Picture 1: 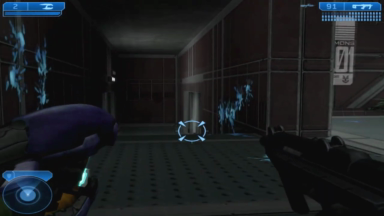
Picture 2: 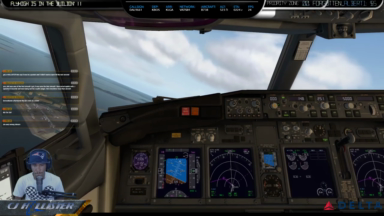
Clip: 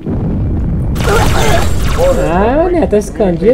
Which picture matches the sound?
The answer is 1